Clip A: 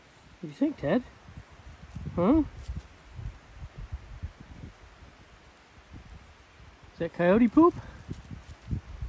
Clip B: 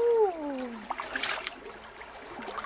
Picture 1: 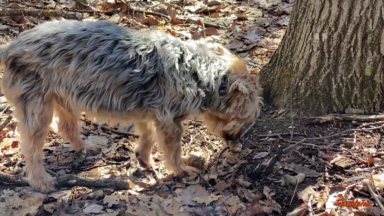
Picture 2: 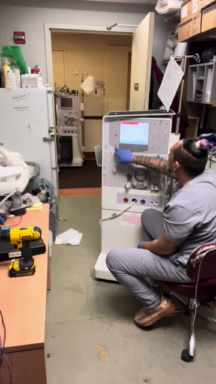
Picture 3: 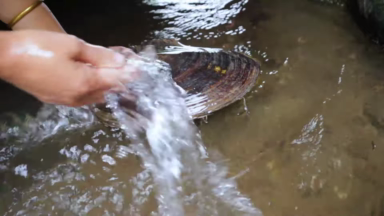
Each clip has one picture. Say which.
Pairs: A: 1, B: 3